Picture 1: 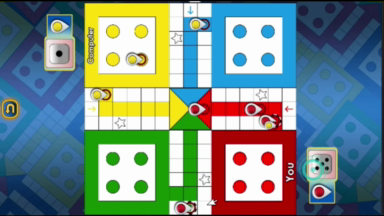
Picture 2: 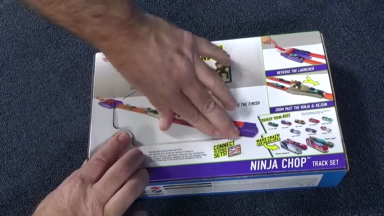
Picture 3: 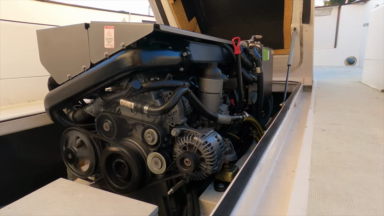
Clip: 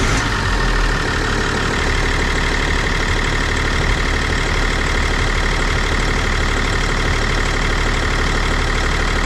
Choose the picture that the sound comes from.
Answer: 3